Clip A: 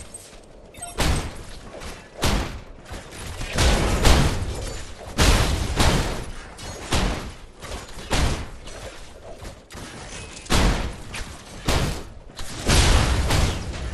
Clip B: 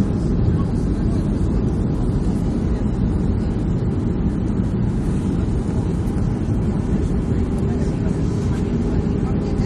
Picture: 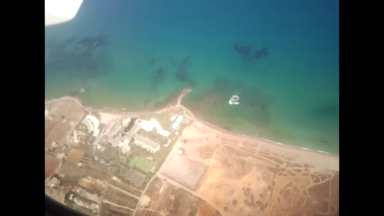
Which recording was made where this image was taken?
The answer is B